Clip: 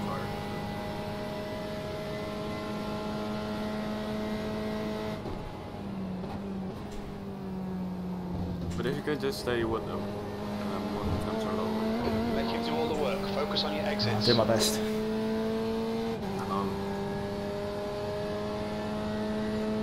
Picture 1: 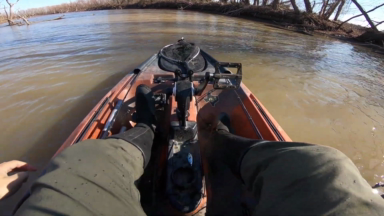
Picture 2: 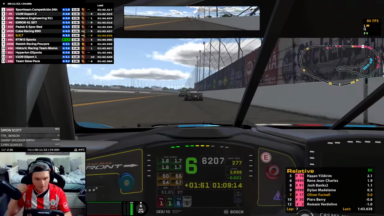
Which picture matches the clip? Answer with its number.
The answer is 2